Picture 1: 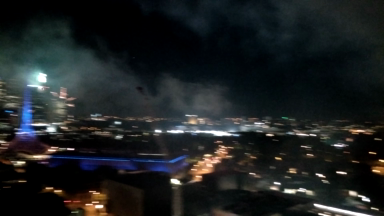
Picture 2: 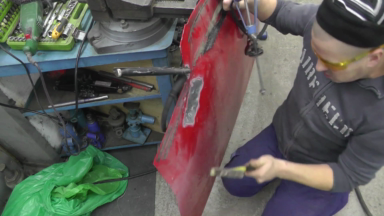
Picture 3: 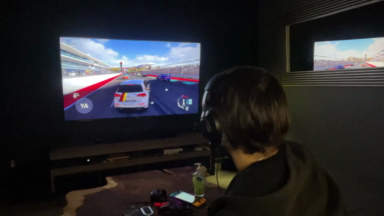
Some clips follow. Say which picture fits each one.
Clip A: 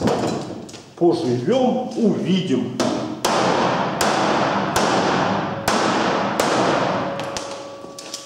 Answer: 2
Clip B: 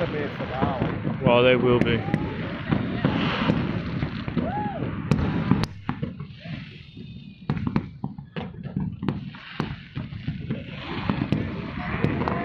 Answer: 1